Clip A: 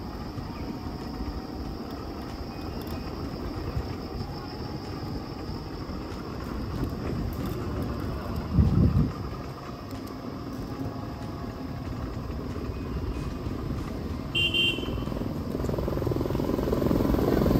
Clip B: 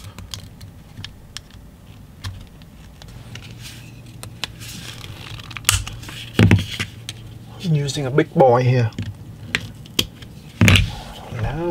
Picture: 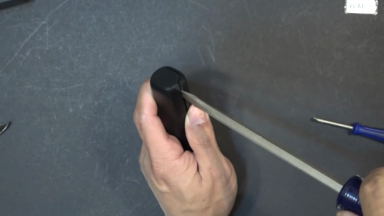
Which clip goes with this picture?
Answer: B